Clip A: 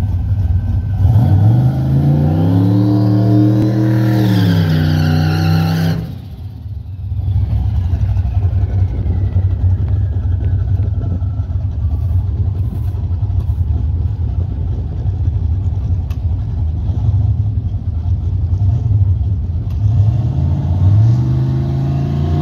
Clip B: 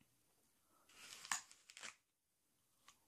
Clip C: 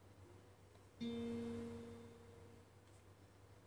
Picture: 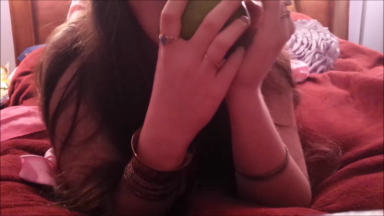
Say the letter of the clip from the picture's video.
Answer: B